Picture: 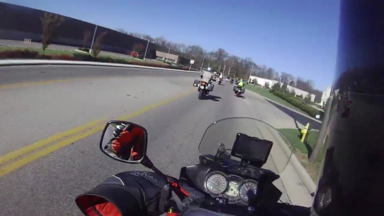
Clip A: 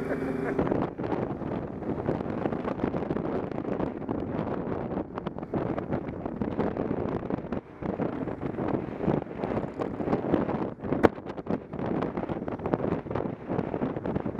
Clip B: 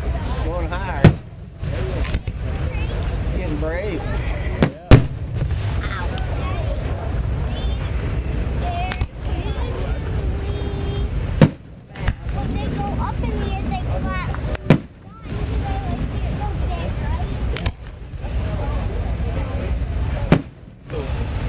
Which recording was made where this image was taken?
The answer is A